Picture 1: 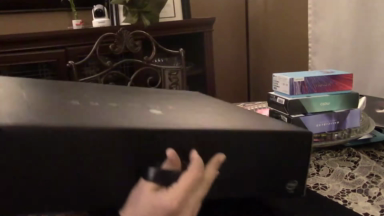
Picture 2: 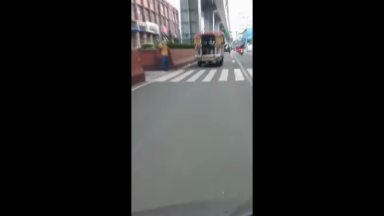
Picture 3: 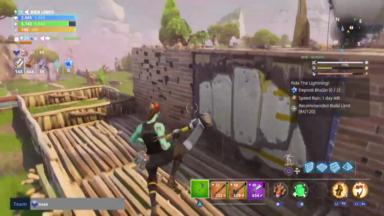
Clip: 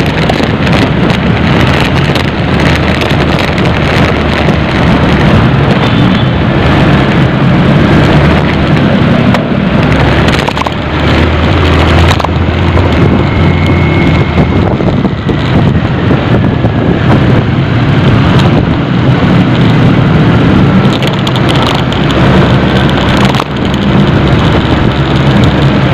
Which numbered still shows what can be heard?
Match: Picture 2